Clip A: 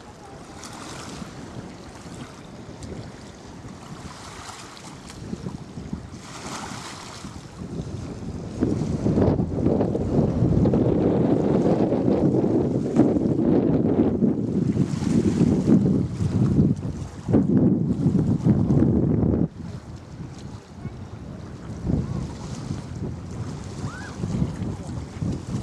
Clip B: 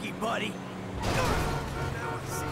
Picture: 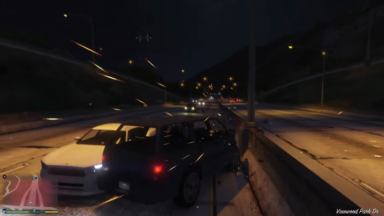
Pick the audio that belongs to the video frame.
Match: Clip B